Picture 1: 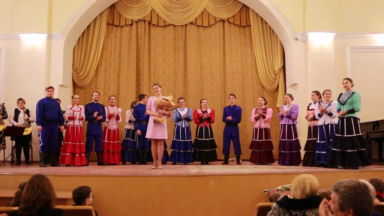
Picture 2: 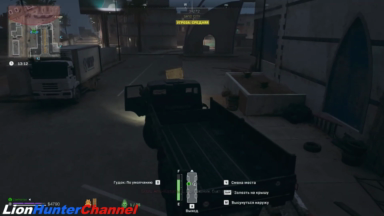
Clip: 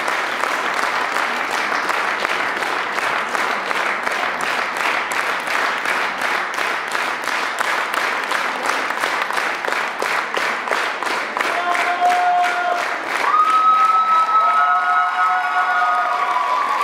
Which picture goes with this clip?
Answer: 1